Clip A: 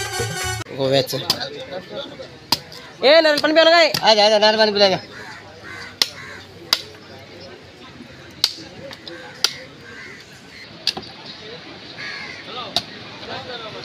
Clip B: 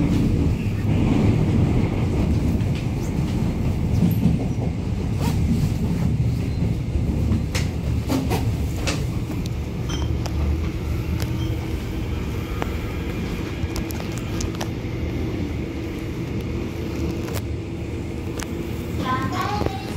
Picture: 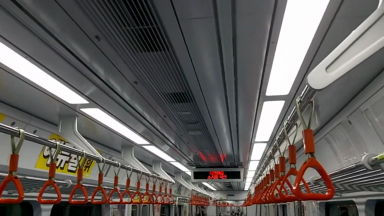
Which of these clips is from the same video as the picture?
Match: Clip B